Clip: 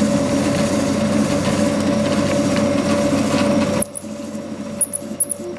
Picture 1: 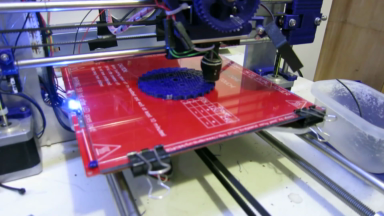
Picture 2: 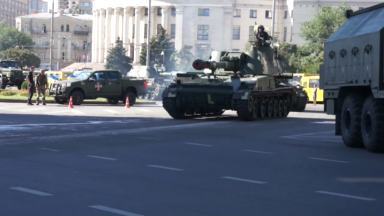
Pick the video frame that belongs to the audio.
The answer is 1